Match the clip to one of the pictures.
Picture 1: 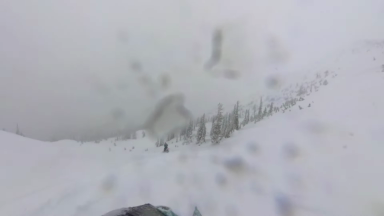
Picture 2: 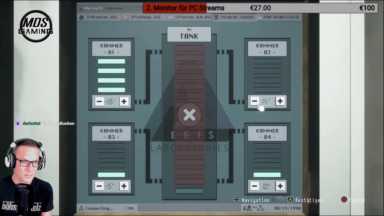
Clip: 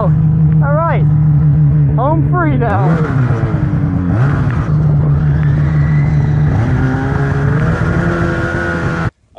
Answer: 1